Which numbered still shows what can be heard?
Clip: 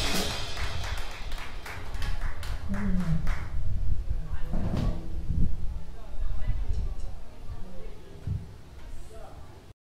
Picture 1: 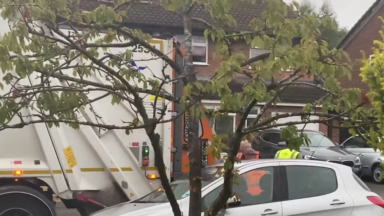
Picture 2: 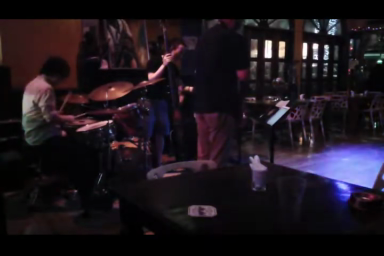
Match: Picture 2